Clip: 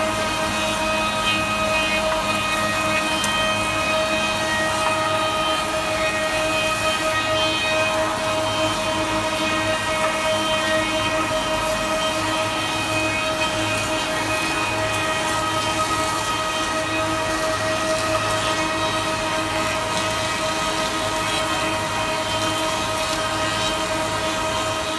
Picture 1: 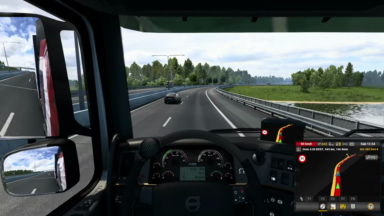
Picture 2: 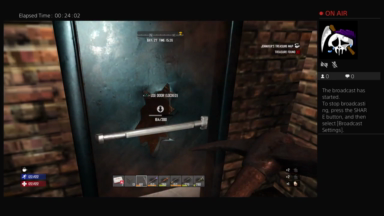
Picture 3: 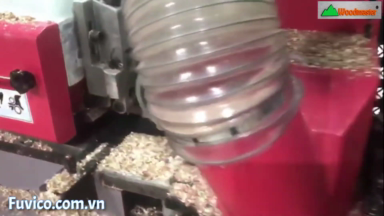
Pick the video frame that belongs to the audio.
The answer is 3